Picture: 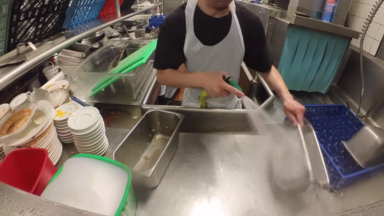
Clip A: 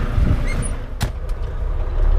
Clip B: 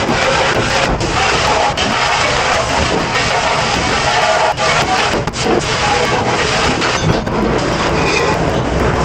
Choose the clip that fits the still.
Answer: B